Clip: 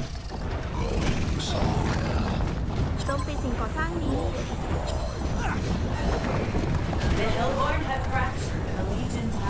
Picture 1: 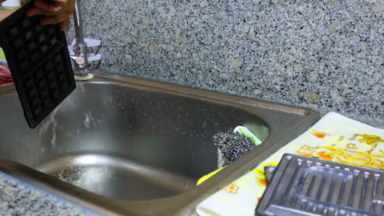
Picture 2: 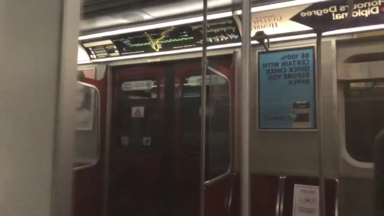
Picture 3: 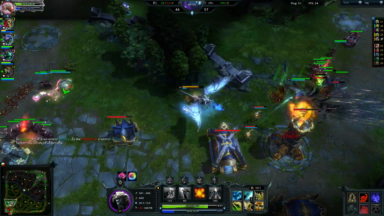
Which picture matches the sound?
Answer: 3